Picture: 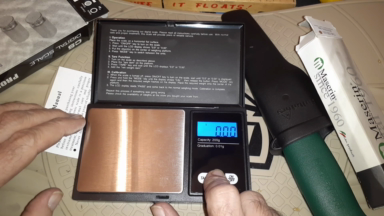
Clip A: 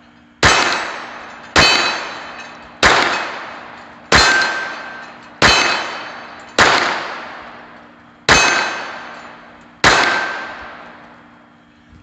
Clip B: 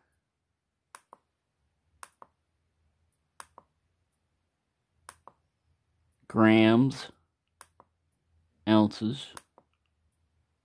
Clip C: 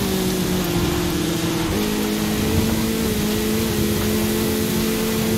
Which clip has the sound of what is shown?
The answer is B